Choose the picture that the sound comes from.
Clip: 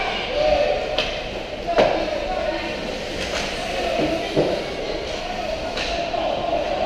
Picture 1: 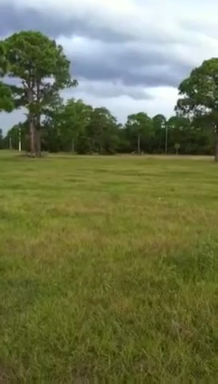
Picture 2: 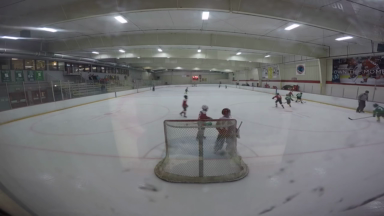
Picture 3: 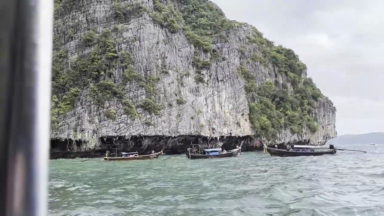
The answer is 2